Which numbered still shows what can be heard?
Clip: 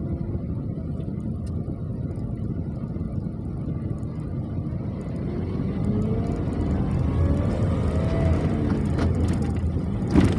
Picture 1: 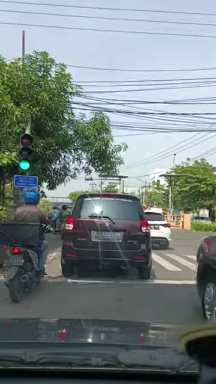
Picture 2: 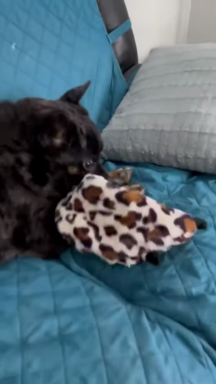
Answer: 1